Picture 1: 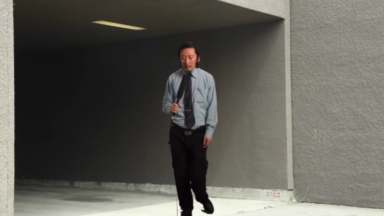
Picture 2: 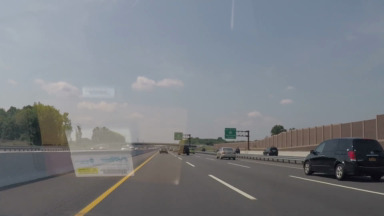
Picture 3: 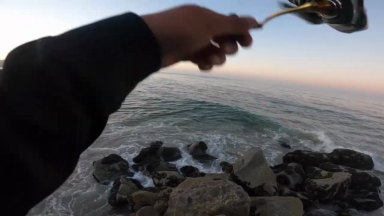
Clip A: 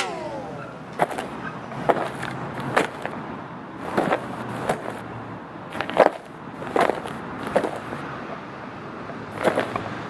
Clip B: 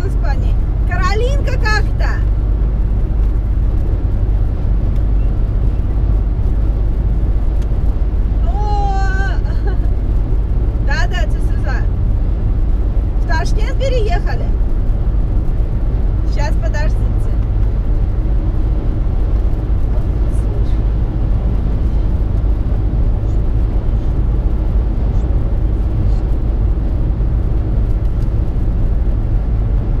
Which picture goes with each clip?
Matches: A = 1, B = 2